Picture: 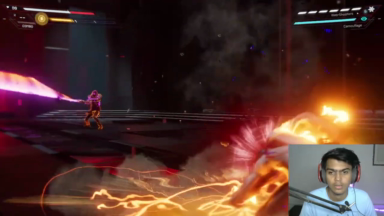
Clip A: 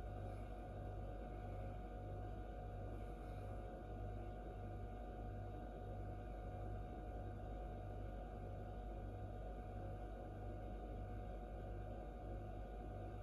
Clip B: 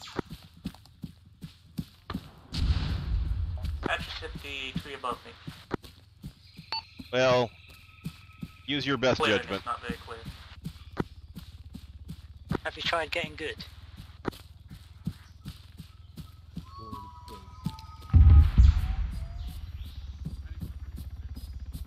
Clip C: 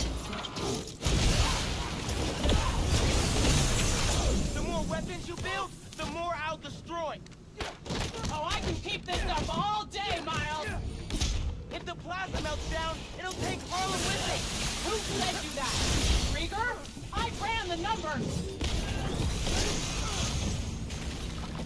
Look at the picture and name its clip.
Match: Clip C